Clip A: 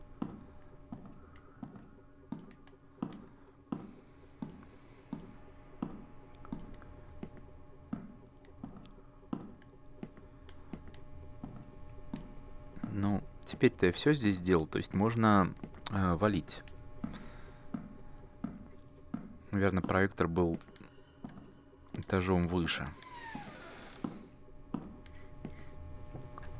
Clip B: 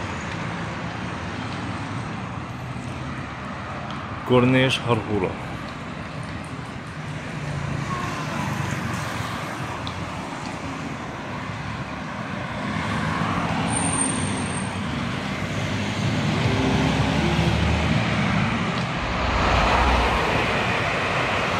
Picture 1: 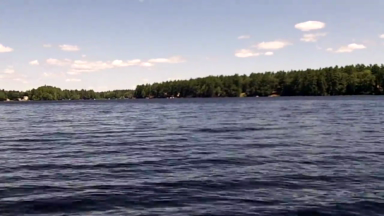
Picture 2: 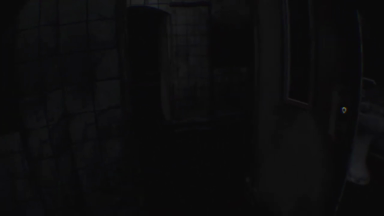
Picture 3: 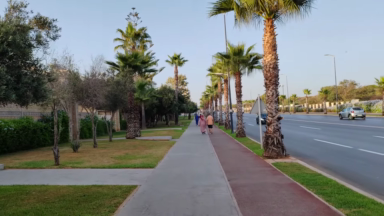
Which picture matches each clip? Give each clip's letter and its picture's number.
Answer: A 2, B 3